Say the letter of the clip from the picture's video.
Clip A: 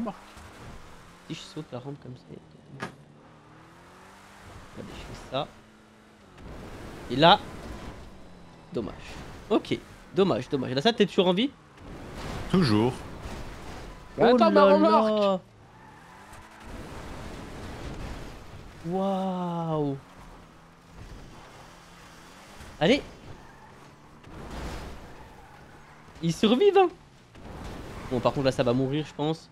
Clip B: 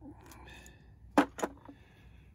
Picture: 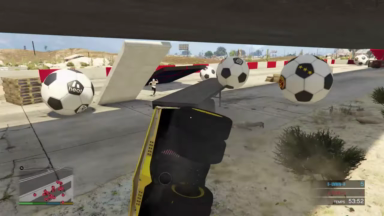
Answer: A